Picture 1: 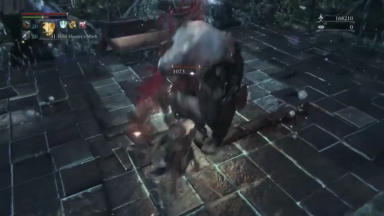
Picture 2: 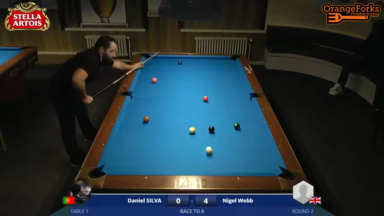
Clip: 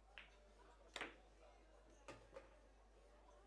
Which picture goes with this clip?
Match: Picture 2